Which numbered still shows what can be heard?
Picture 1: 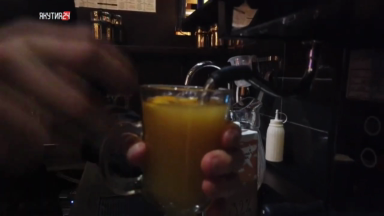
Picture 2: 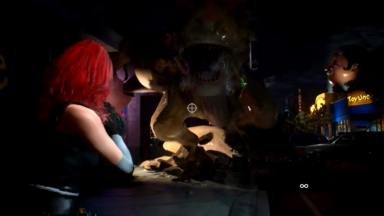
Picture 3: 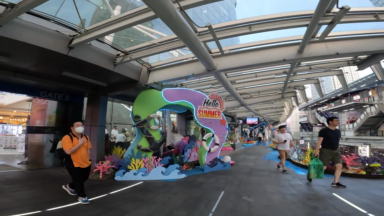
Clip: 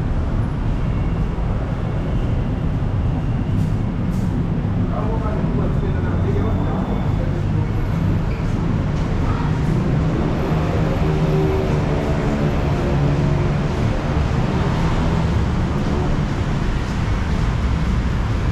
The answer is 3